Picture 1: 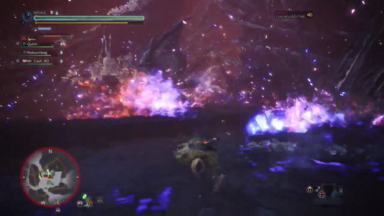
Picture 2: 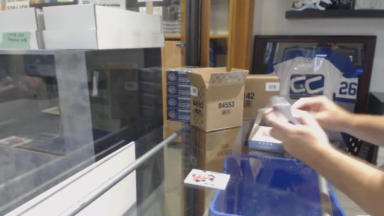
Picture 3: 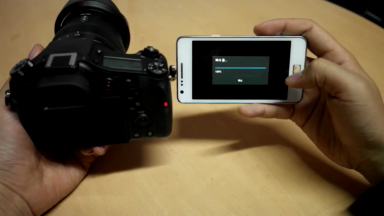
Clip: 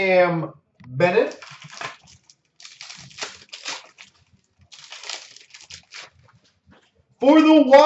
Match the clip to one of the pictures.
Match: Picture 2